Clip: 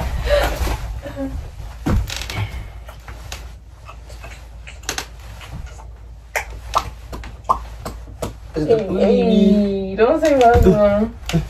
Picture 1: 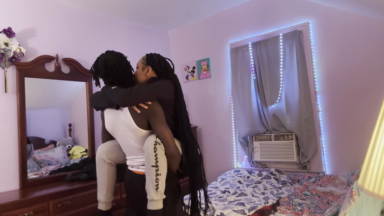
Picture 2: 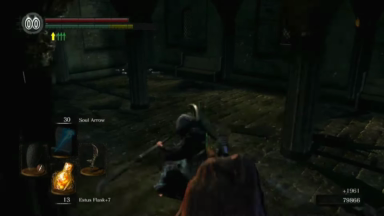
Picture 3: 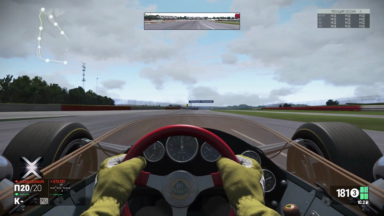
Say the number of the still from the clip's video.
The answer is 1